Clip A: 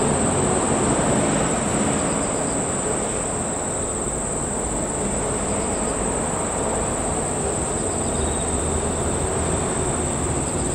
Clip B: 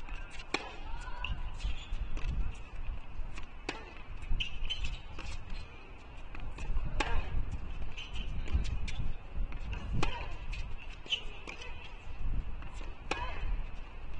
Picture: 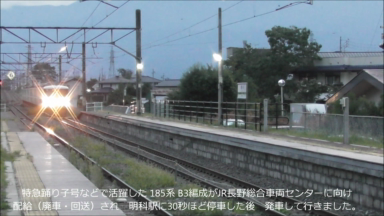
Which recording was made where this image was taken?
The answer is A